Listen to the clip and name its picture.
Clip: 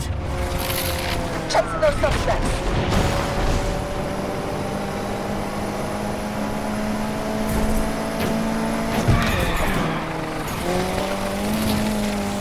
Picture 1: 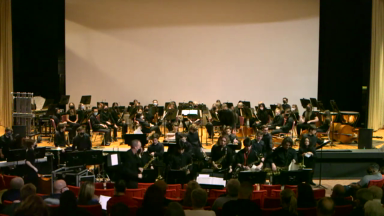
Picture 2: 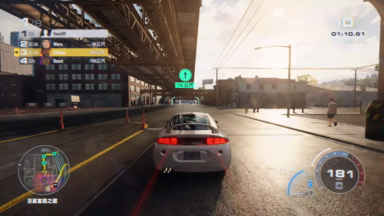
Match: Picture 2